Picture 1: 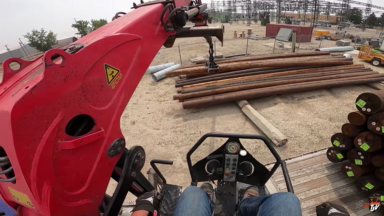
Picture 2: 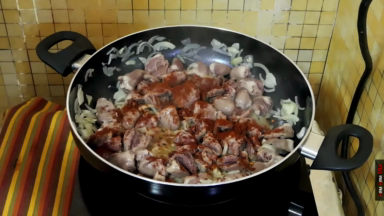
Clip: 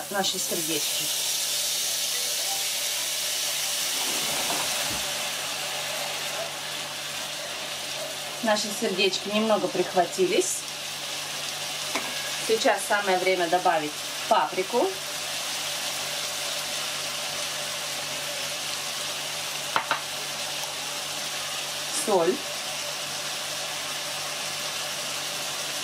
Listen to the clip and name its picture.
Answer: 2